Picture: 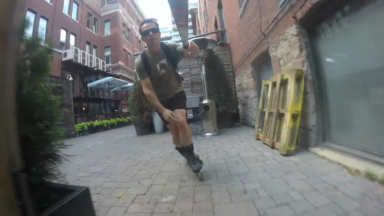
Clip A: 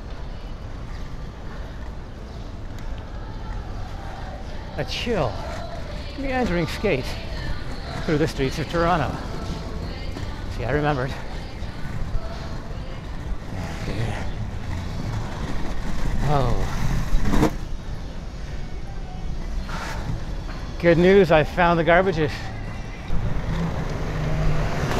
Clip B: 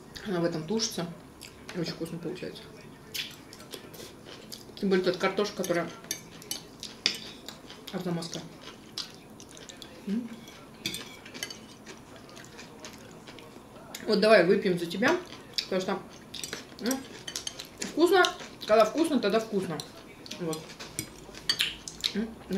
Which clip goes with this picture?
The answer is A